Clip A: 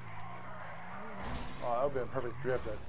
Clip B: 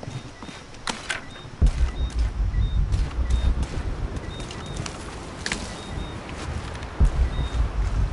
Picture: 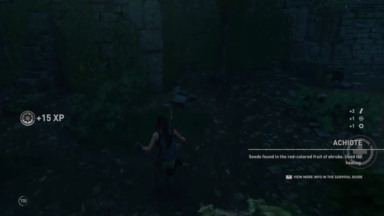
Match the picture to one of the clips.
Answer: B